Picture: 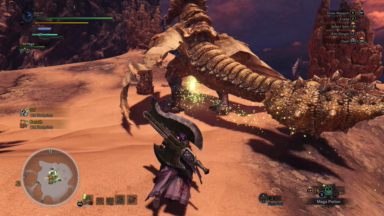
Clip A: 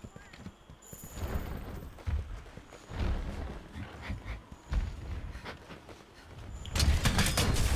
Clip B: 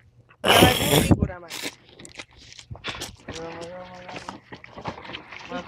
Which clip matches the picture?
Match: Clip A